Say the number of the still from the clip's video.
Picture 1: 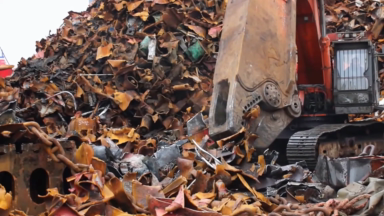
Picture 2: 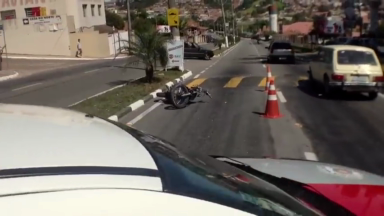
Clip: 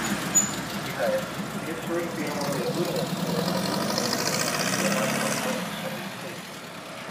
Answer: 2